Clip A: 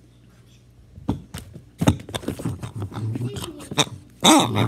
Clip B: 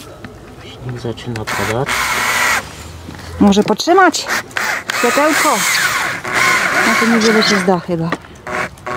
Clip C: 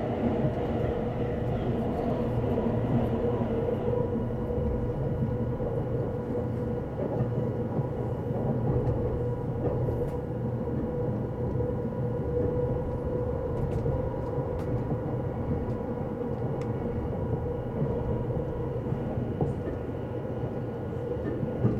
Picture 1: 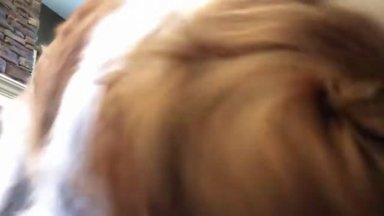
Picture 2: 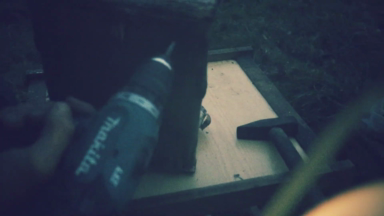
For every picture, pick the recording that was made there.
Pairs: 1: A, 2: B